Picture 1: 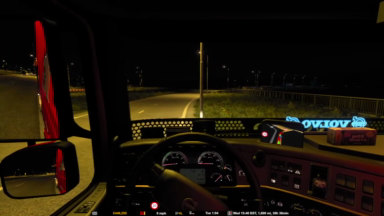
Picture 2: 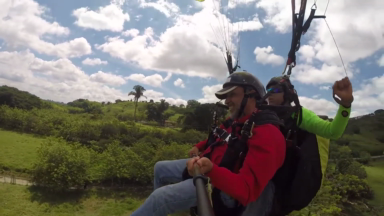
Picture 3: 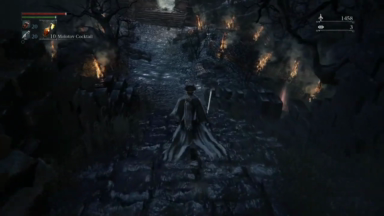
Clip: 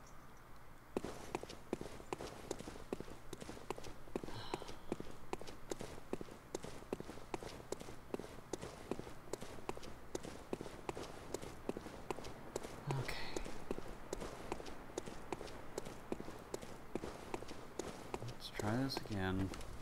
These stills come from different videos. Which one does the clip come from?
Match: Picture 3